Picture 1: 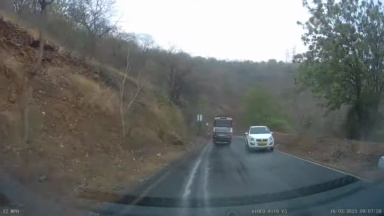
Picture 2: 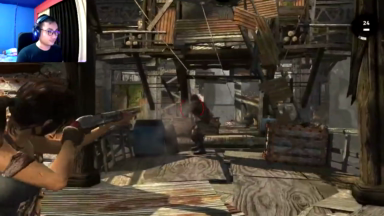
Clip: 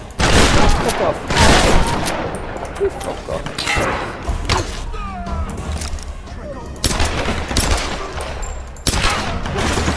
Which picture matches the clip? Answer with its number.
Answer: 2